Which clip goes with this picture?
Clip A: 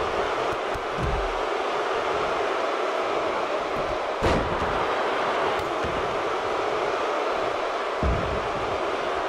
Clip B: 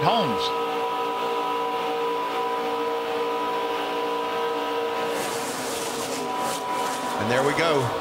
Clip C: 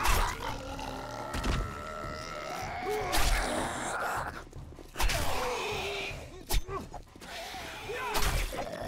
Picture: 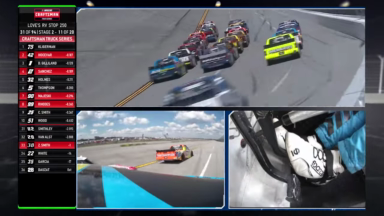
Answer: B